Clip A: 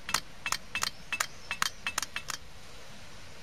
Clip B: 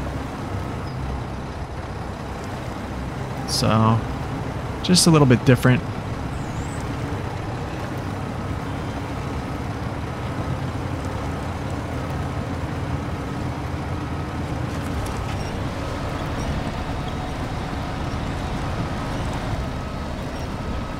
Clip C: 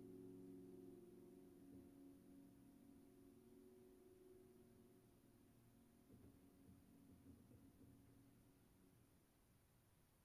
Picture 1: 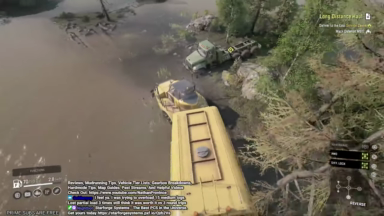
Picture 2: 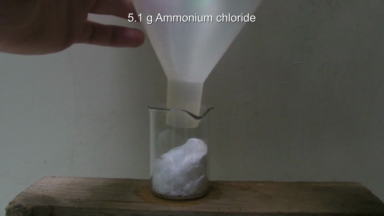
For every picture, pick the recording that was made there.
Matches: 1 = B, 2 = A